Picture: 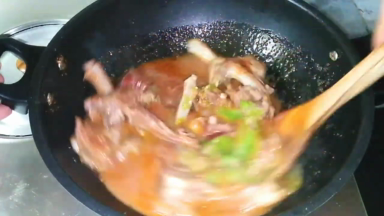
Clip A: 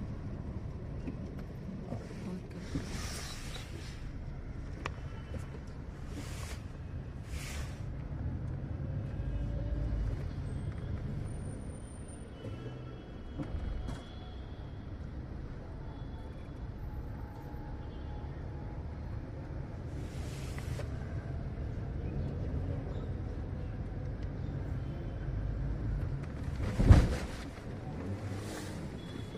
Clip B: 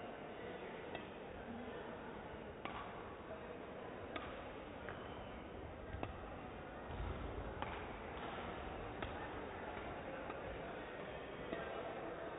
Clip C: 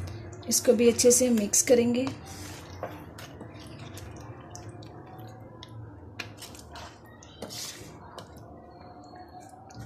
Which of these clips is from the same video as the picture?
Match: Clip C